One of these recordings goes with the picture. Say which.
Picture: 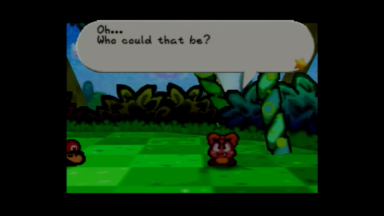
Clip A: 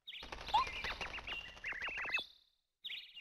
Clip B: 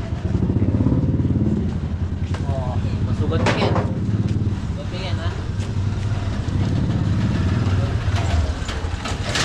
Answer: A